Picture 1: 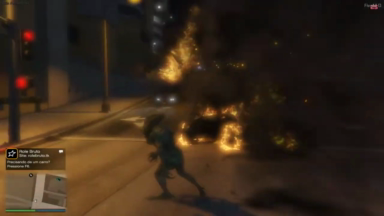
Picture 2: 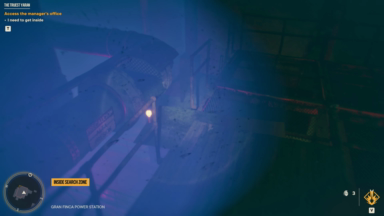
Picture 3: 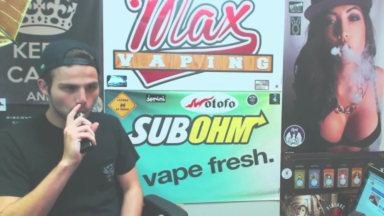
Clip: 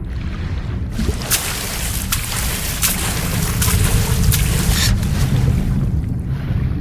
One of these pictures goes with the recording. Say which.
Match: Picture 2